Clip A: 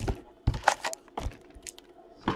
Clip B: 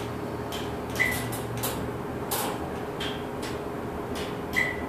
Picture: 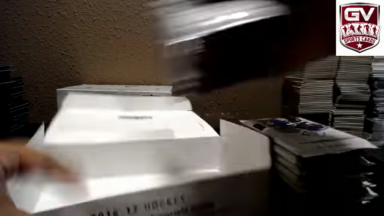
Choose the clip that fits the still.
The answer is A